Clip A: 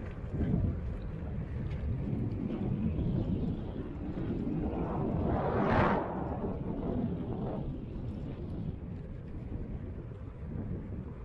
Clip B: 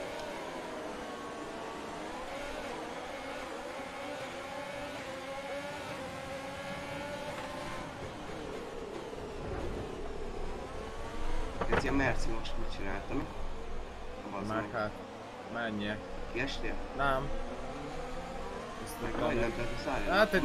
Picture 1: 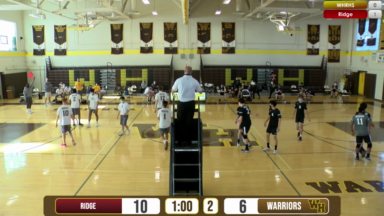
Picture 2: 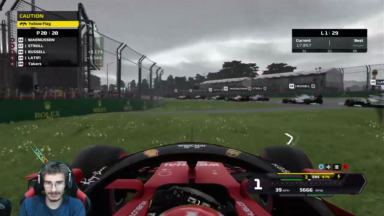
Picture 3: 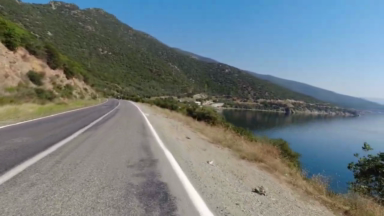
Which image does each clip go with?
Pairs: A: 3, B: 2